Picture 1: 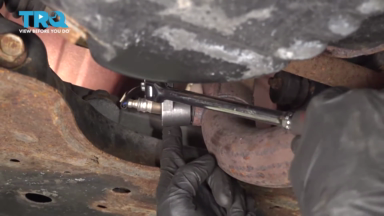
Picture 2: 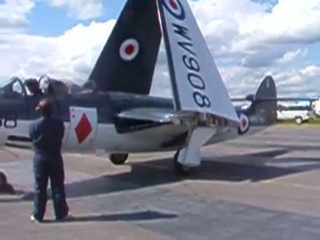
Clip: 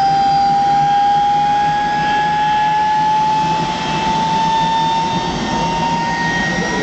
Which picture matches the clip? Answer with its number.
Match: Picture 2